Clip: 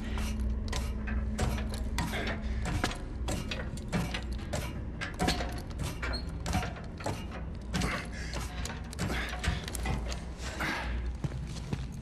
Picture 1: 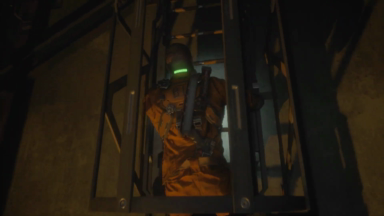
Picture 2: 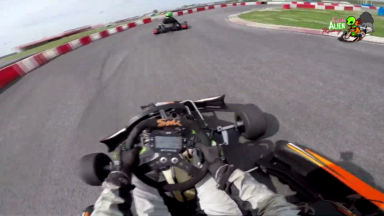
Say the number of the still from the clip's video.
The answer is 1